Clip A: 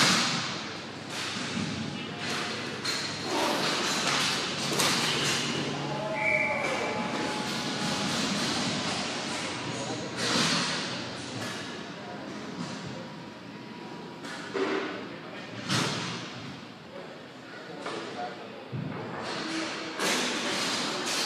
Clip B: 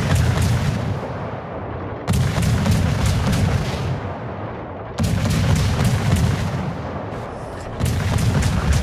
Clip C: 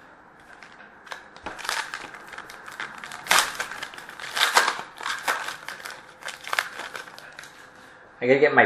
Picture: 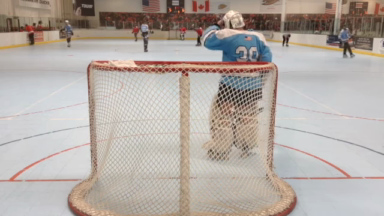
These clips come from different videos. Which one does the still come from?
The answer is A